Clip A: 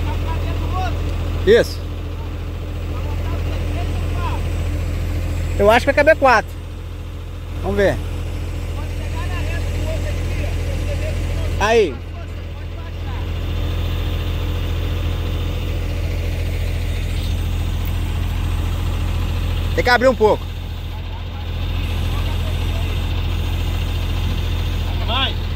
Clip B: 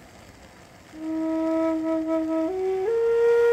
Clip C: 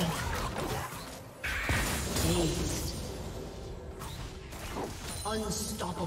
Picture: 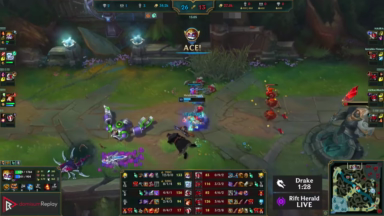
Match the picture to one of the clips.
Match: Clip C